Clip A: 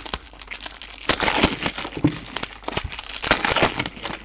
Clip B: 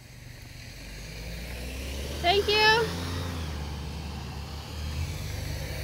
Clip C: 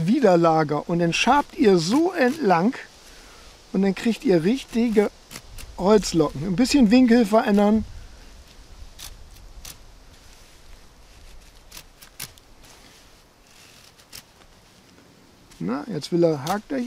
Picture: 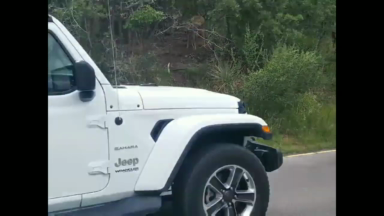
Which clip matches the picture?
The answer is B